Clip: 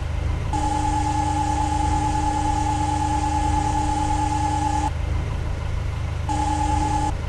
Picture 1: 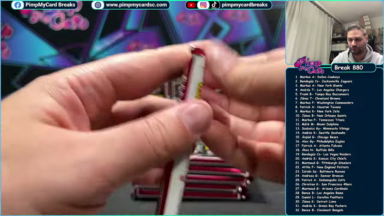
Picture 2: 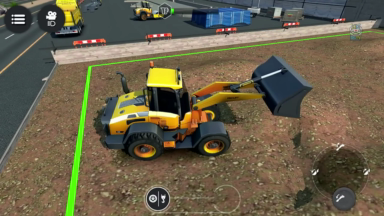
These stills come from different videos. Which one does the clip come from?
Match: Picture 2